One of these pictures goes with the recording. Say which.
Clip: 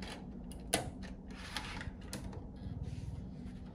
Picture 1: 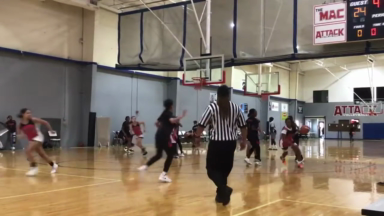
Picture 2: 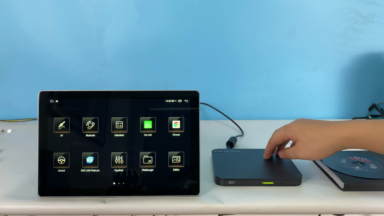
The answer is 2